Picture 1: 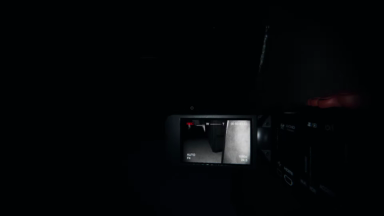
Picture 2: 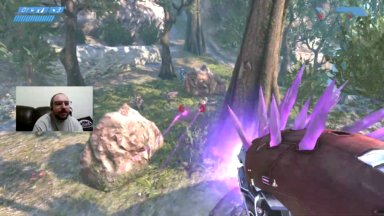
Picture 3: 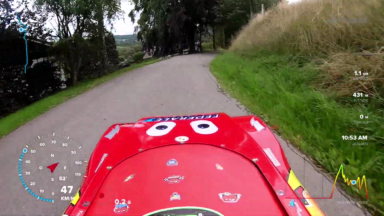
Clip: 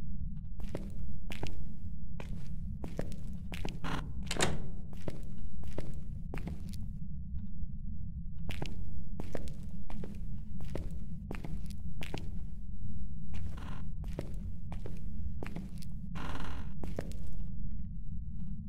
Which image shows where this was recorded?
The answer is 1